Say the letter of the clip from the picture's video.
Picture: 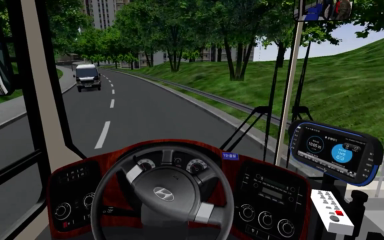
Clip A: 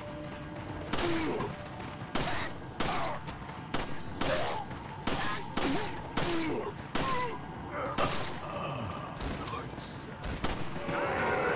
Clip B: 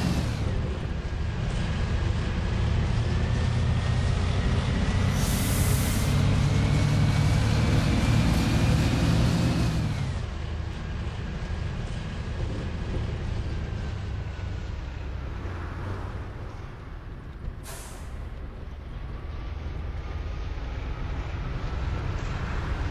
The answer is B